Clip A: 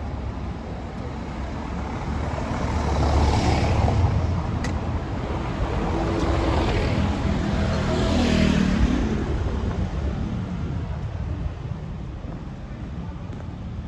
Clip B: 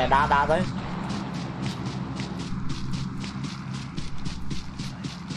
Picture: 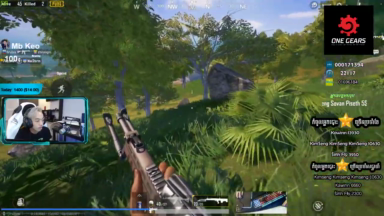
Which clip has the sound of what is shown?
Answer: B